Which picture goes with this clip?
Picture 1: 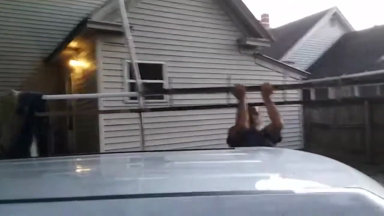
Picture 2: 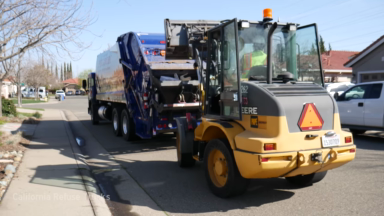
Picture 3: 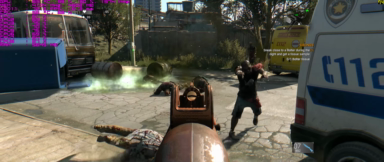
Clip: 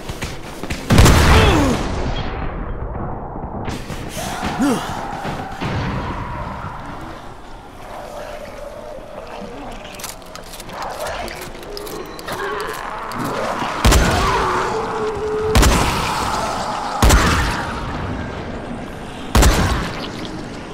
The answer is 3